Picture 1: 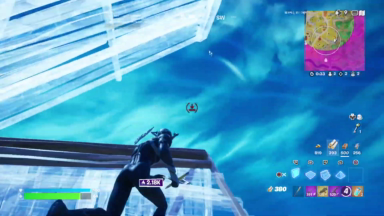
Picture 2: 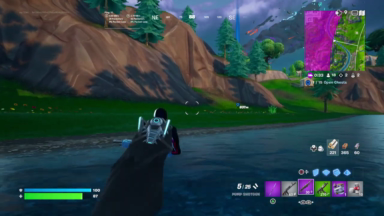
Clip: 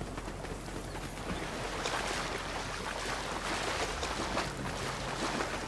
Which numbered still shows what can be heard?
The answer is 2